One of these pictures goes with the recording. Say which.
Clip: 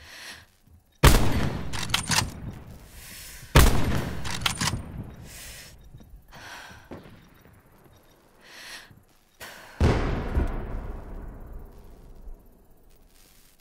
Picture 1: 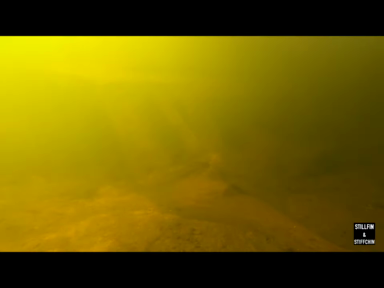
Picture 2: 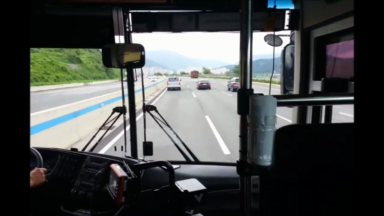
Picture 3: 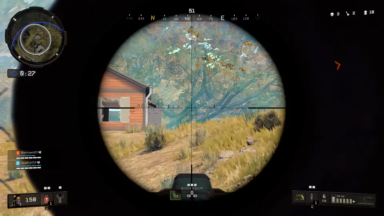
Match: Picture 3